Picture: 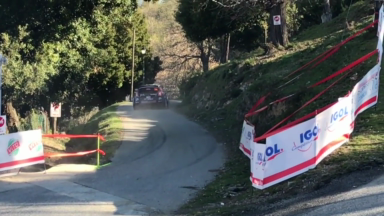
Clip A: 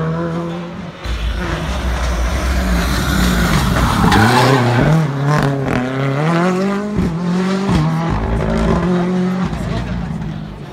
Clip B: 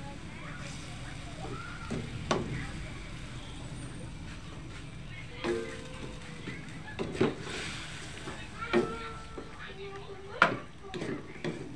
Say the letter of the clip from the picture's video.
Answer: A